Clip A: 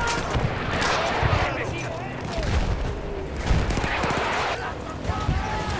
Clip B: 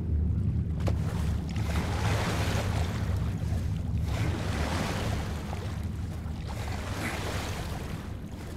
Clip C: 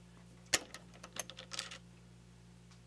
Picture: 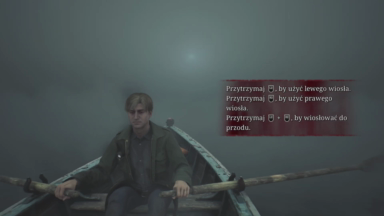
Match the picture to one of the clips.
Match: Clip B